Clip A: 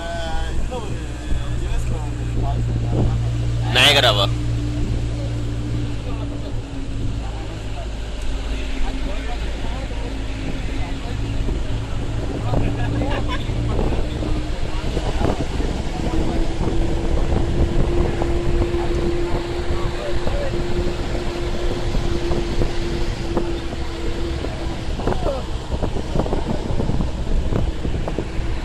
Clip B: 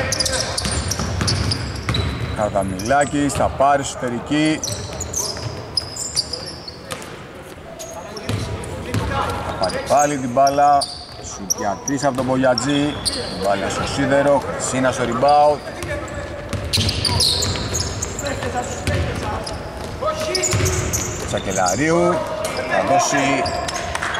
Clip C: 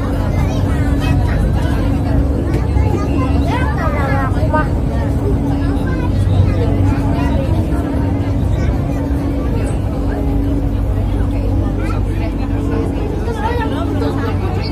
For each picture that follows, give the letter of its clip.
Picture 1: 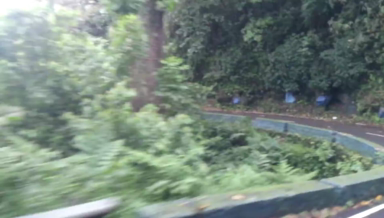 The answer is A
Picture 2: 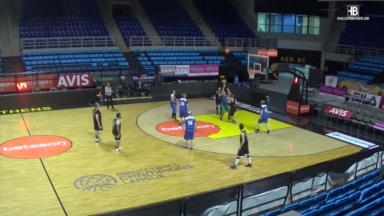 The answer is B